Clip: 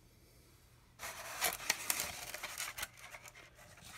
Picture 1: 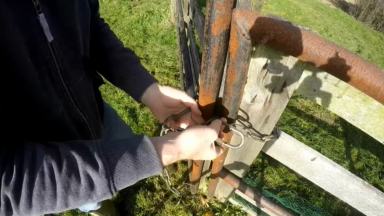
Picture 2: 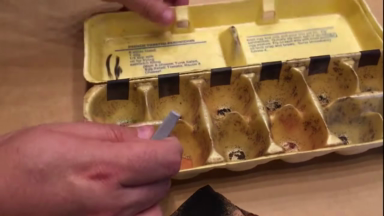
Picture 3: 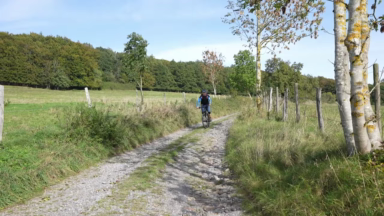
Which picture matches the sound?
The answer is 2